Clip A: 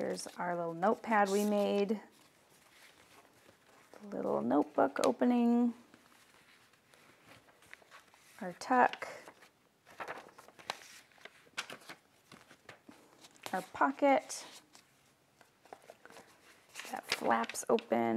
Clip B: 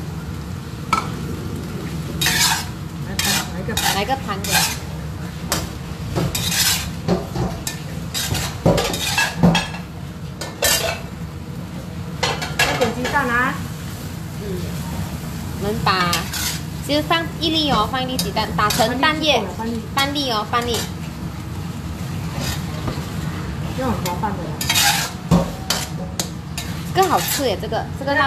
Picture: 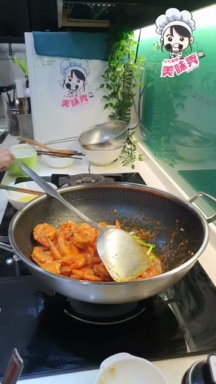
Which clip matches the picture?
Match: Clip B